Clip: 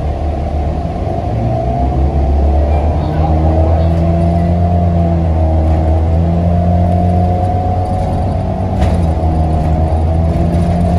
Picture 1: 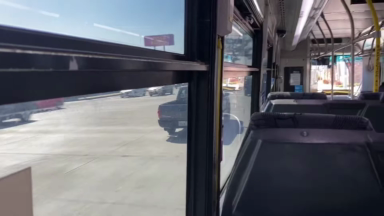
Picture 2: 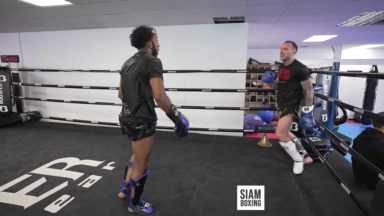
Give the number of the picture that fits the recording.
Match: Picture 1